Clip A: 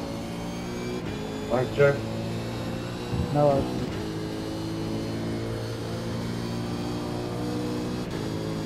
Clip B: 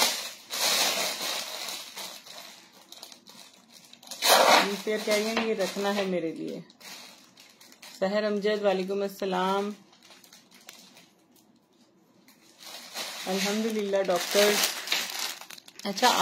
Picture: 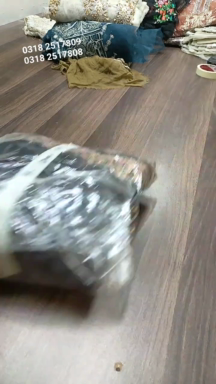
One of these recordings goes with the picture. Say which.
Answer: B